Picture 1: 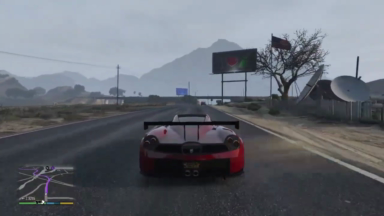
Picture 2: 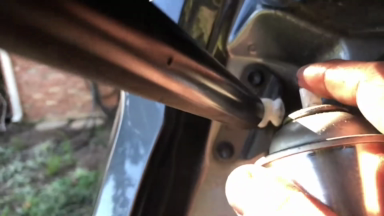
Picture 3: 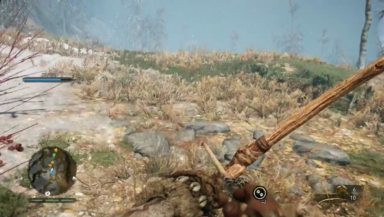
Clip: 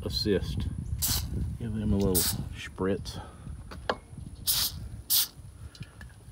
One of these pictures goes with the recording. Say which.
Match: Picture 2